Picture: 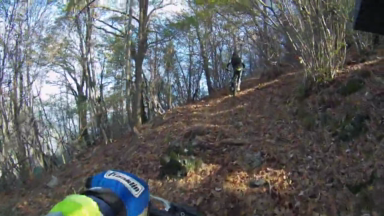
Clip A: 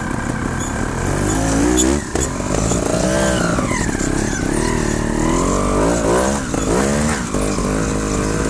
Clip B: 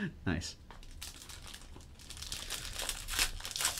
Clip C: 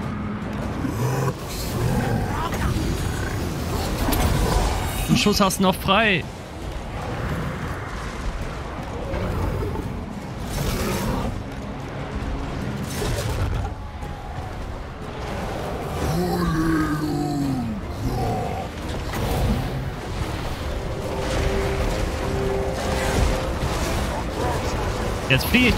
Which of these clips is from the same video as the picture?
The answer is A